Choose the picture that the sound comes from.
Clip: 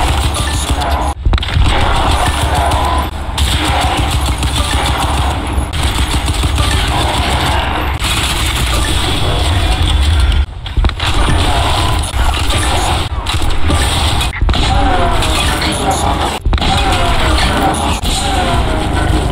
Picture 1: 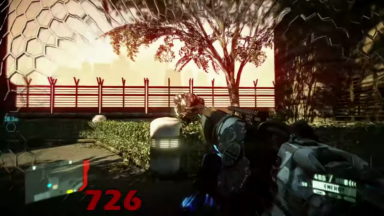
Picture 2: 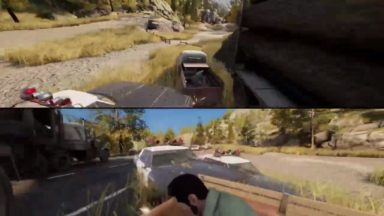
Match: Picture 1